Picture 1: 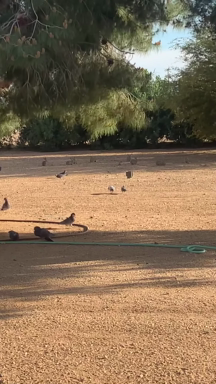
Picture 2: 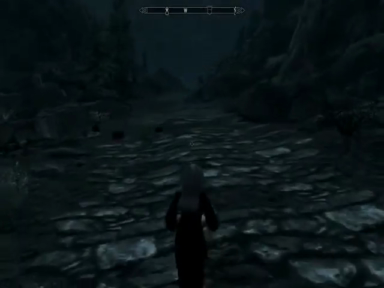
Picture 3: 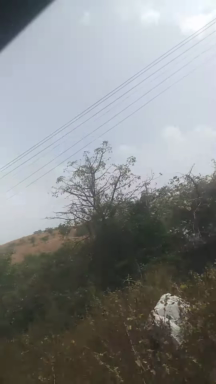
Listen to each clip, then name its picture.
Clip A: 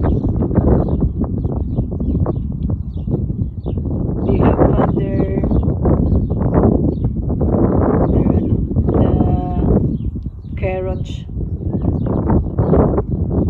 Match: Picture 1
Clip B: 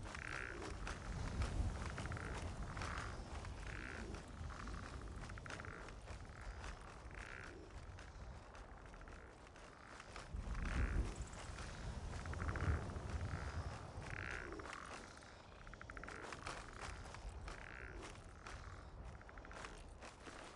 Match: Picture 2